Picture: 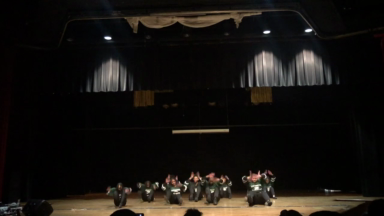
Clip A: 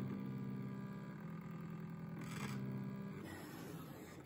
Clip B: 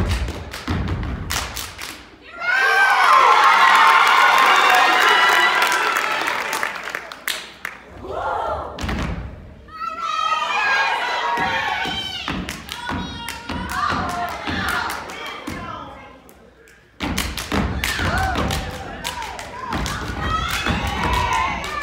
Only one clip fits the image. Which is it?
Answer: B